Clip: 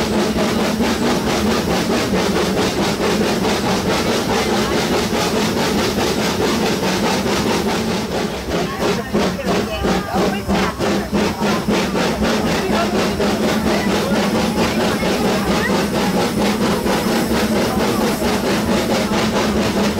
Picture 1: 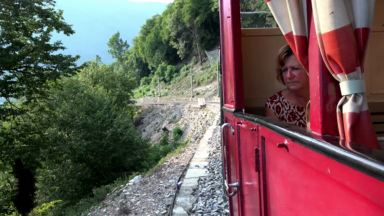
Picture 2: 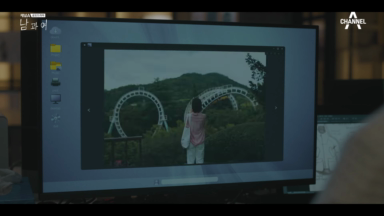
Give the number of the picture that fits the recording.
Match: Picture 1